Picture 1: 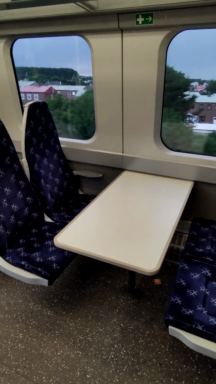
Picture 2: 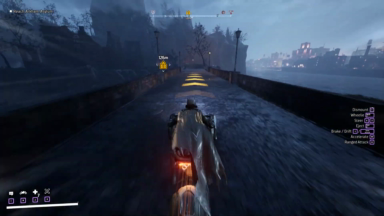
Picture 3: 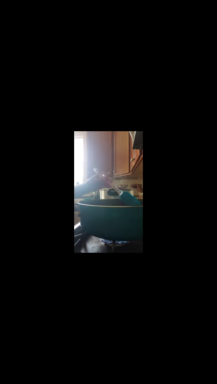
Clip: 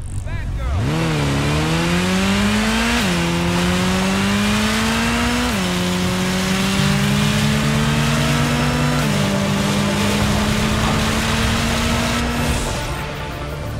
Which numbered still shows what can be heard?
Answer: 2